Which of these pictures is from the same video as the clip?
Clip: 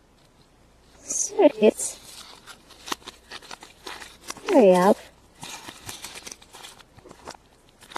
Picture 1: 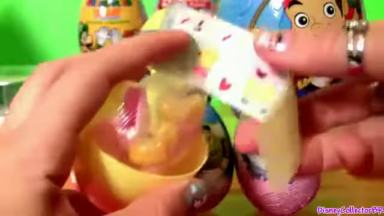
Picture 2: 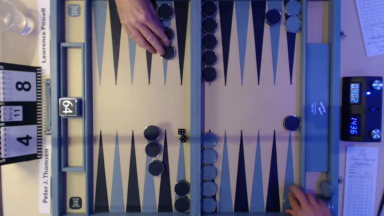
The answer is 1